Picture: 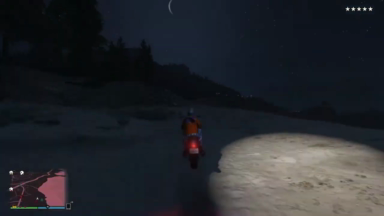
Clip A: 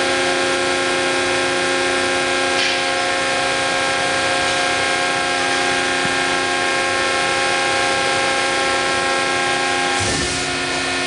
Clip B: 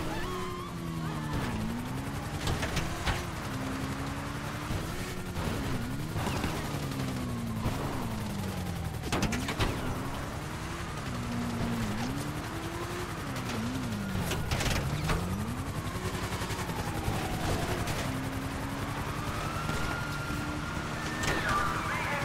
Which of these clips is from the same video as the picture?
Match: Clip B